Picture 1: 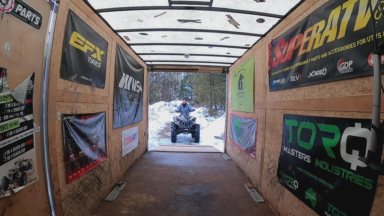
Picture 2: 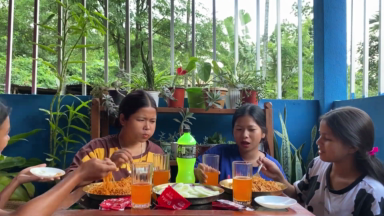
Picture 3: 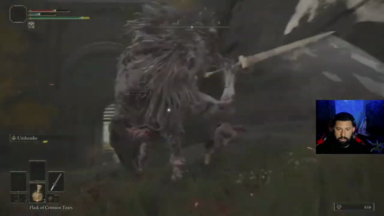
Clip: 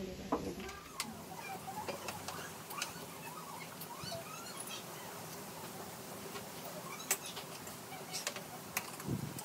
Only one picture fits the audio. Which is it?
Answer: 2